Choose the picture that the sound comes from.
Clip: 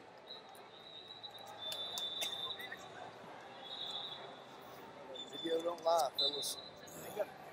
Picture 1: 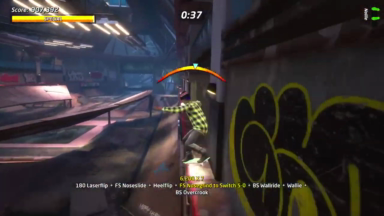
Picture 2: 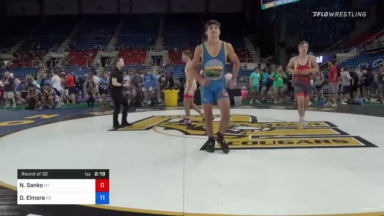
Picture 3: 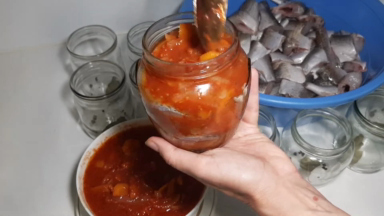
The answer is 2